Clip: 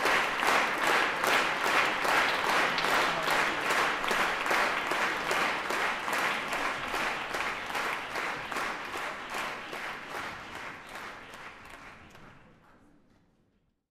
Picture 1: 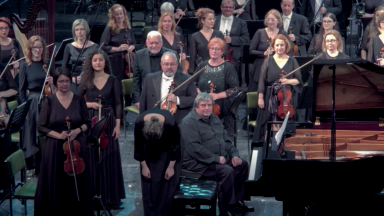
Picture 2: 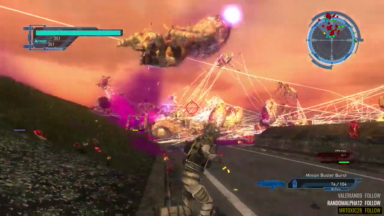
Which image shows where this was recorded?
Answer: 1